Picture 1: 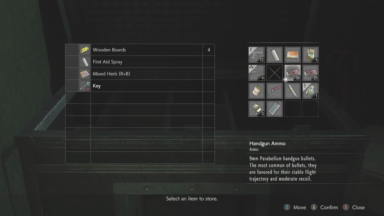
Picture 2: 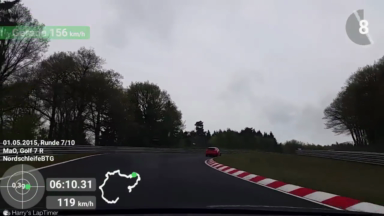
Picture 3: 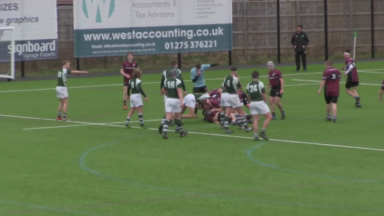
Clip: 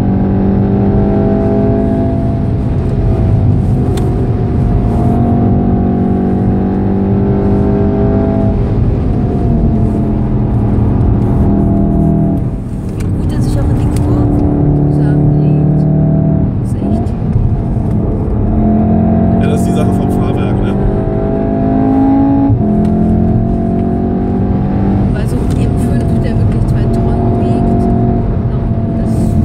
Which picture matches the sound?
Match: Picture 2